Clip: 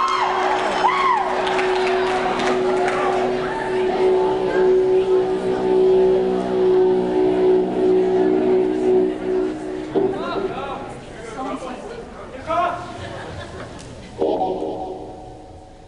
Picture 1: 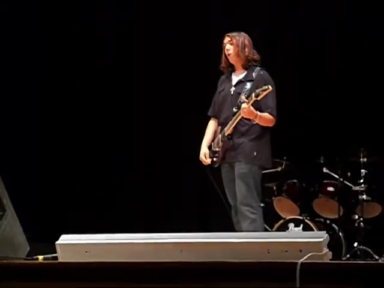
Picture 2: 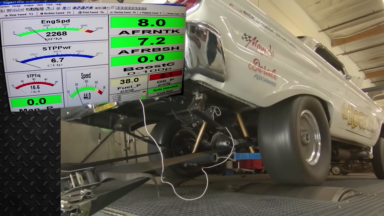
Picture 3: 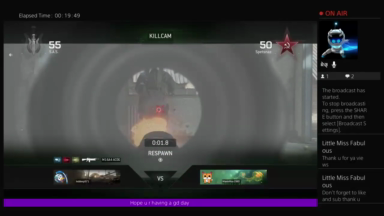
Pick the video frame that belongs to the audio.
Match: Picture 1